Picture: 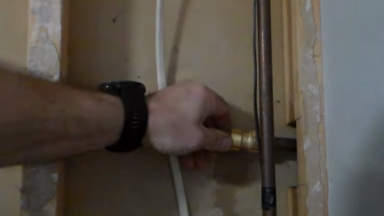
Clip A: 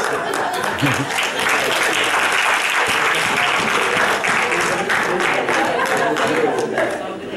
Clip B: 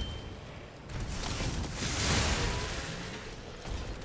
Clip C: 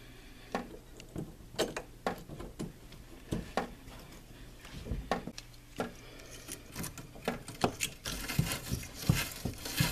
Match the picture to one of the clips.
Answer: C